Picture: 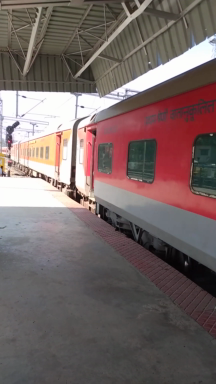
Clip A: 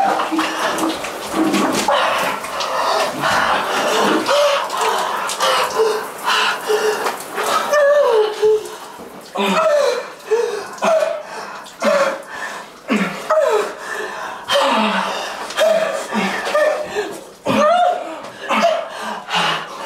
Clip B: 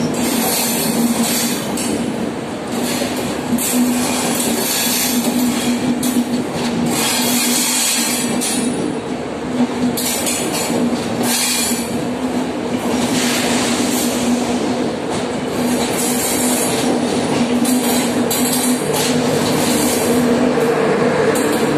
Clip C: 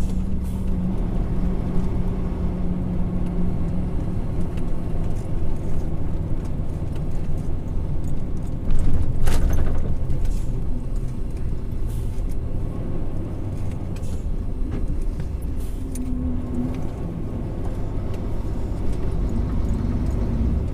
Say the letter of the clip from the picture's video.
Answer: B